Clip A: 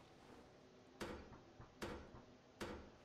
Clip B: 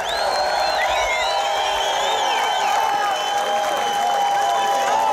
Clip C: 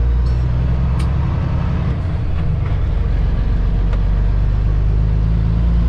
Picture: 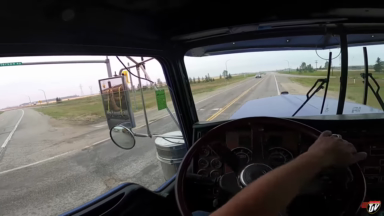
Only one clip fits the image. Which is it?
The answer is C